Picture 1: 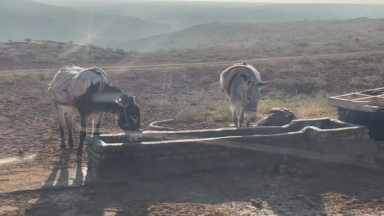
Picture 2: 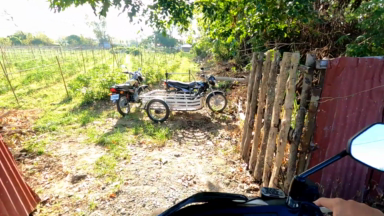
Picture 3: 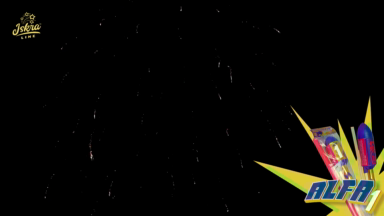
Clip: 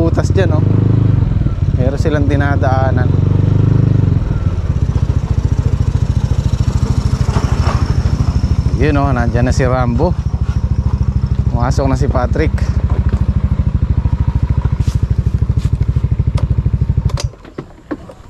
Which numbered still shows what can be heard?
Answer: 2